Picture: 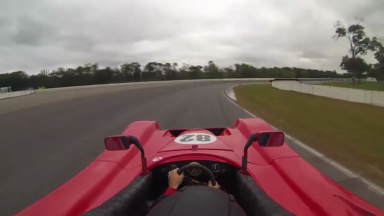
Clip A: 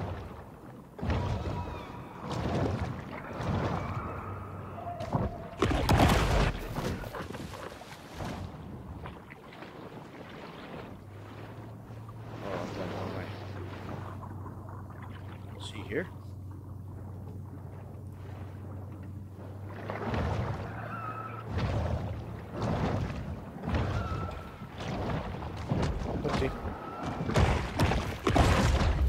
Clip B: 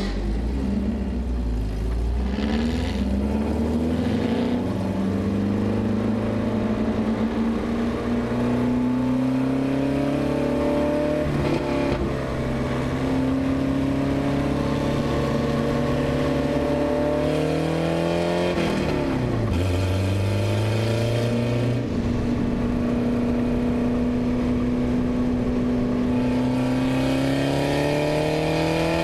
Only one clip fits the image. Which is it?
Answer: B